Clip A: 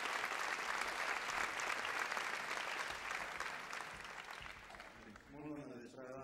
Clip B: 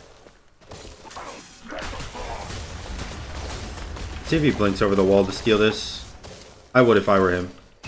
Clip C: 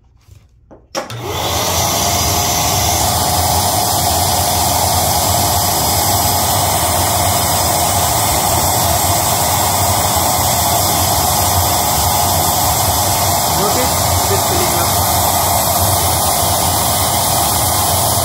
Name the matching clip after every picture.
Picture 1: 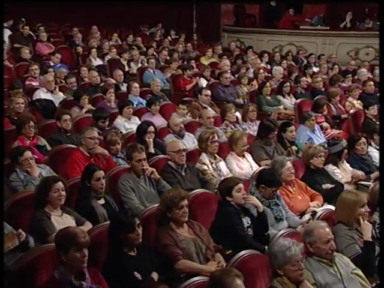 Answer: A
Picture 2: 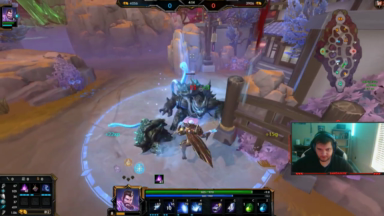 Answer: B